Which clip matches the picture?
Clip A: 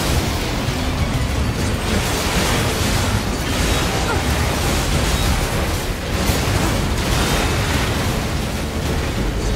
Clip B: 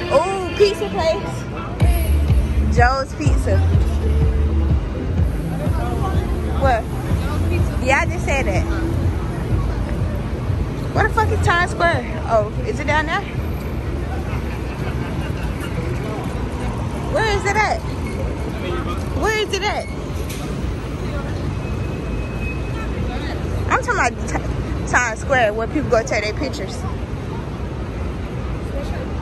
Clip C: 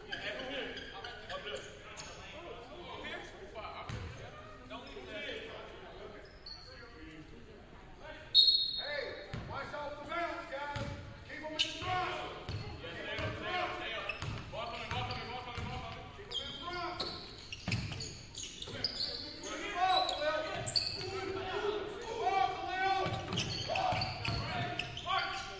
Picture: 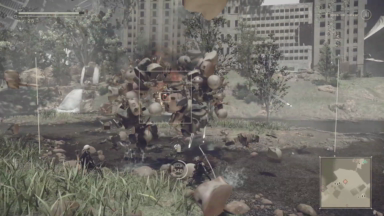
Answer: A